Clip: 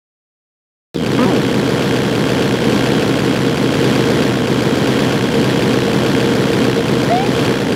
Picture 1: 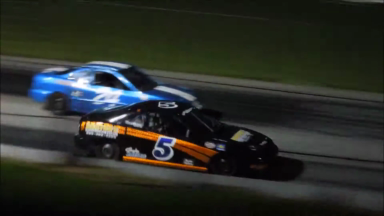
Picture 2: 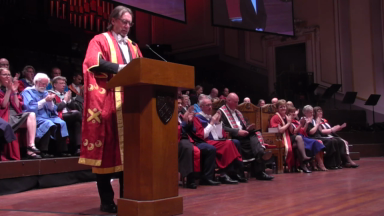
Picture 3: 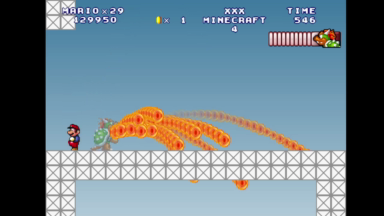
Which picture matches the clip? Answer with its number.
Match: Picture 3